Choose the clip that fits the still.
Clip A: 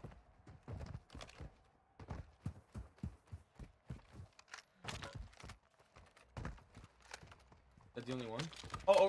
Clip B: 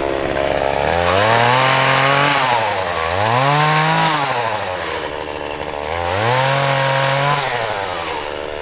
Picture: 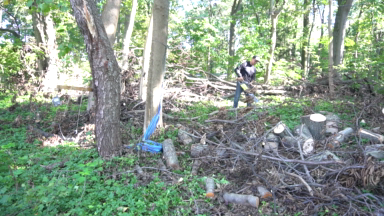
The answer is B